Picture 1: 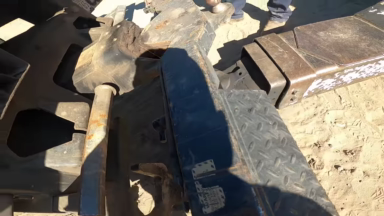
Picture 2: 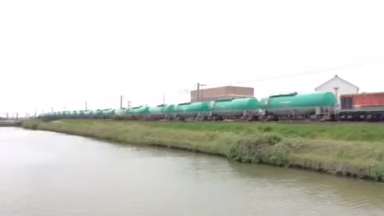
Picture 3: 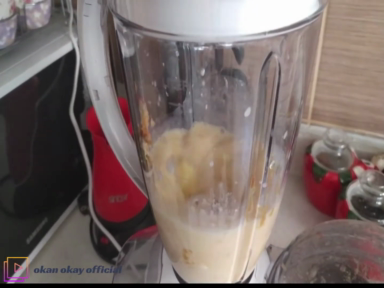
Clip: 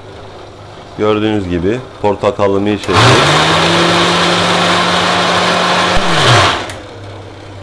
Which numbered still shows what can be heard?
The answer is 3